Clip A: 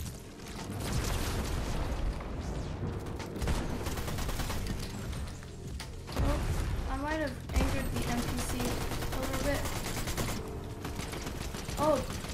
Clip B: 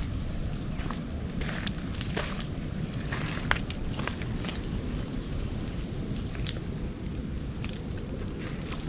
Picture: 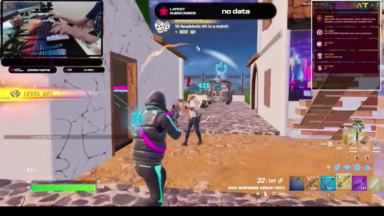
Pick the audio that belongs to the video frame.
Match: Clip A